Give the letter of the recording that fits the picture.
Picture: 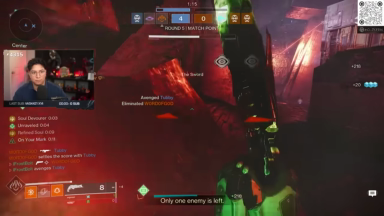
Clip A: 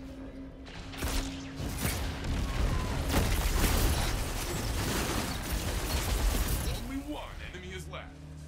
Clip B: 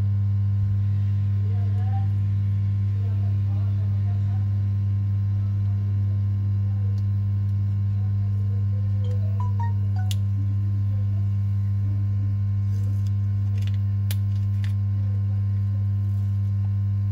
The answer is A